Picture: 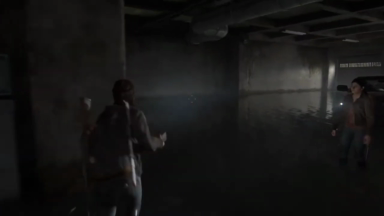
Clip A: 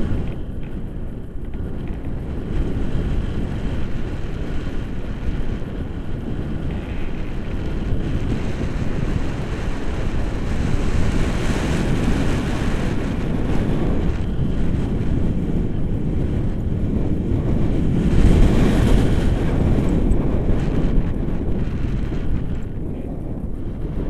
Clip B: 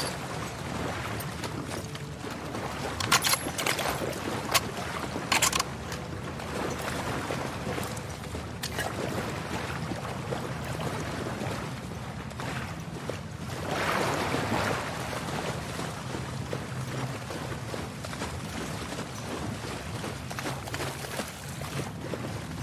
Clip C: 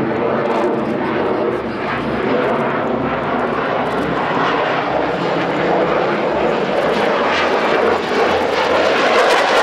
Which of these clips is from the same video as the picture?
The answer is B